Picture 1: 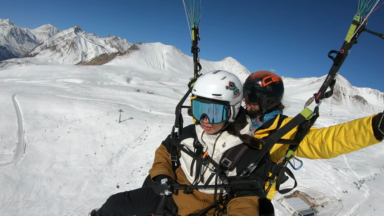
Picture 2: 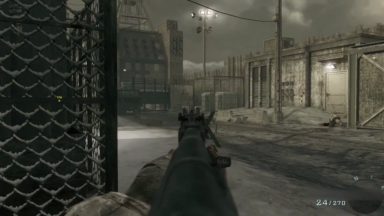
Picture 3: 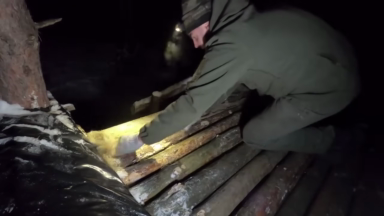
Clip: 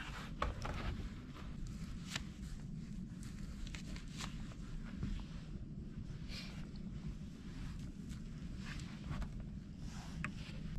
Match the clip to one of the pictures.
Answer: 3